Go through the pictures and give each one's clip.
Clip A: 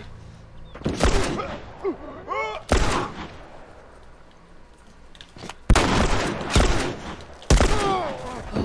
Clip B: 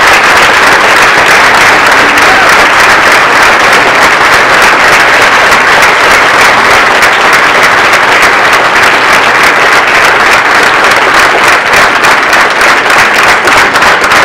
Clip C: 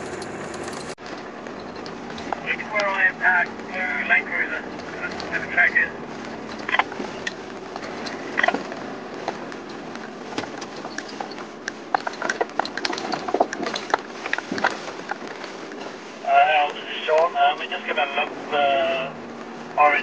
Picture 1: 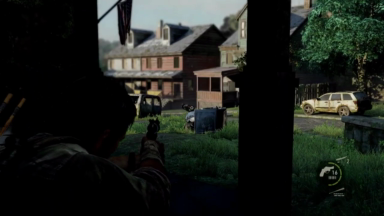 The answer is A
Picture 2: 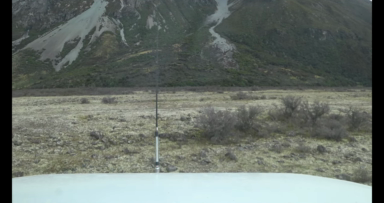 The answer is C